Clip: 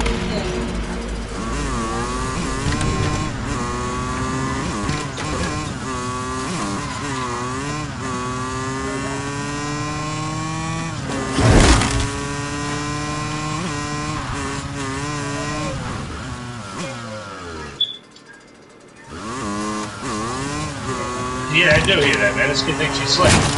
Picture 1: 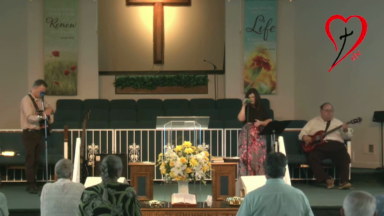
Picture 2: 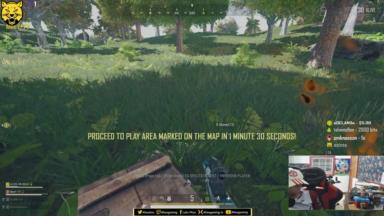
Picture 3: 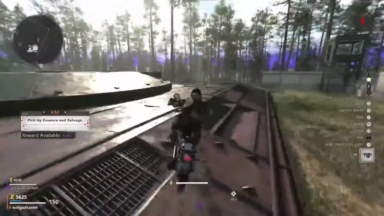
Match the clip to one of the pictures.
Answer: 3